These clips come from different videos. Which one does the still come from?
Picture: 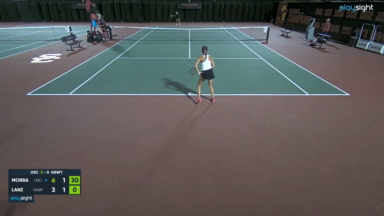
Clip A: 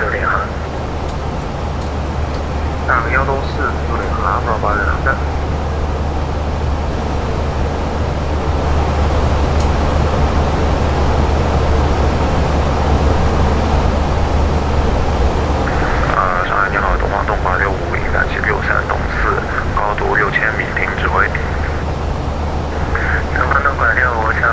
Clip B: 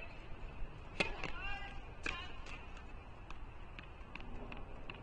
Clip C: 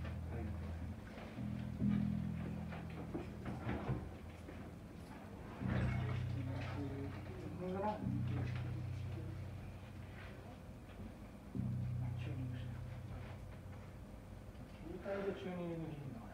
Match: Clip B